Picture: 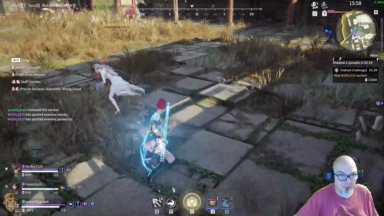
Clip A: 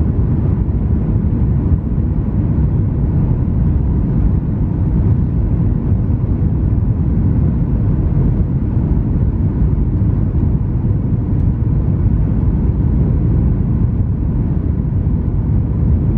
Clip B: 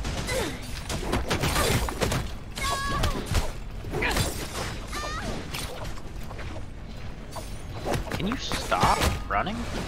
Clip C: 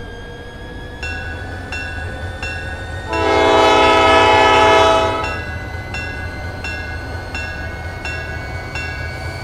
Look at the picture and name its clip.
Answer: B